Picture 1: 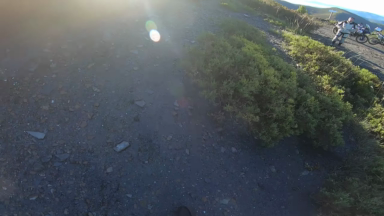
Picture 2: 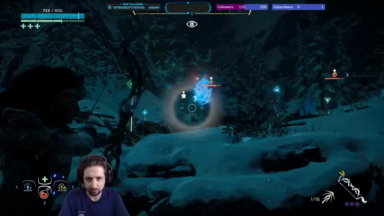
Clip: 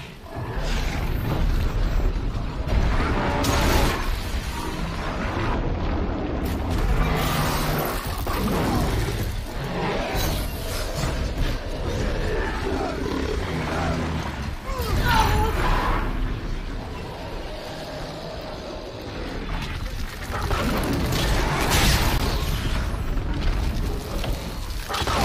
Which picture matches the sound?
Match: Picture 2